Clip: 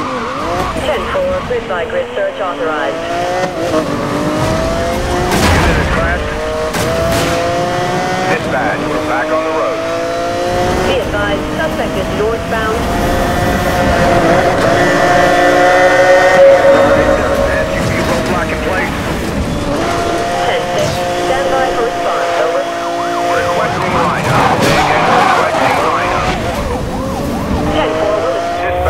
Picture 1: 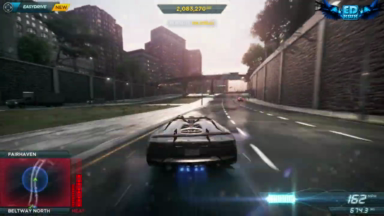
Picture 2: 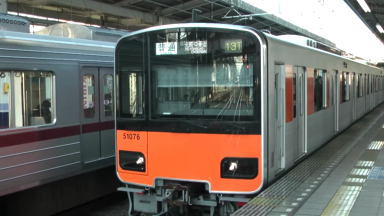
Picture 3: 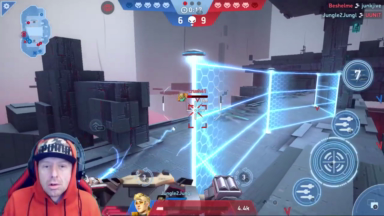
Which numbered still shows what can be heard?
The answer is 1